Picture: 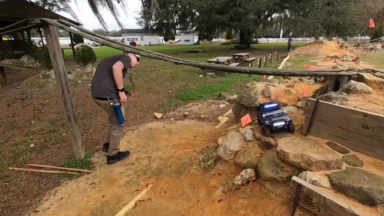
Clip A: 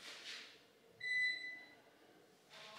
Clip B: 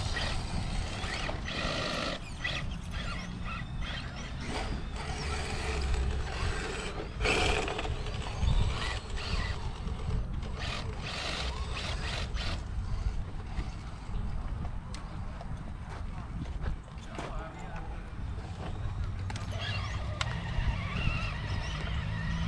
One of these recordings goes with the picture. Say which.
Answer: B